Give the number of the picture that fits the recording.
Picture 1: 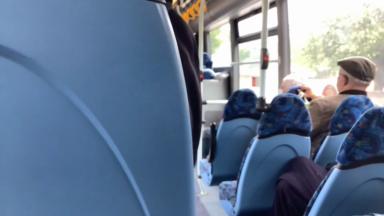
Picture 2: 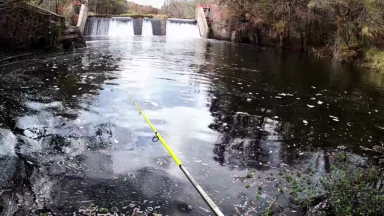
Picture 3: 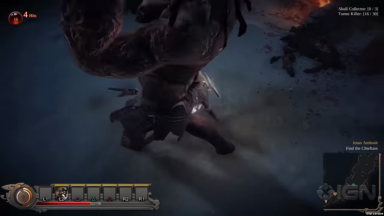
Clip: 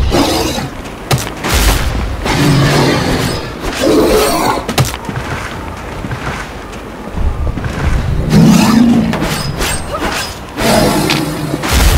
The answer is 3